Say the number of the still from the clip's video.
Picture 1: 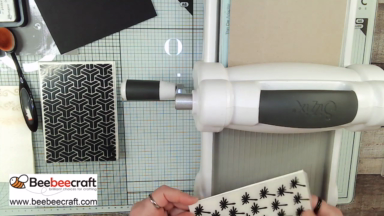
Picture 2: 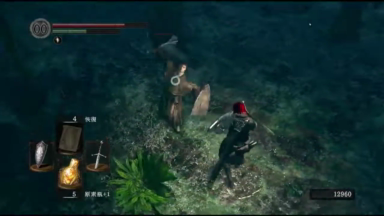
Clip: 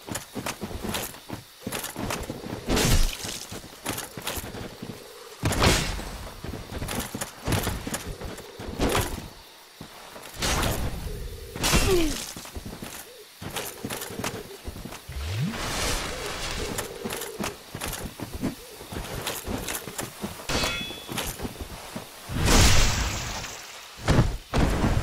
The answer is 2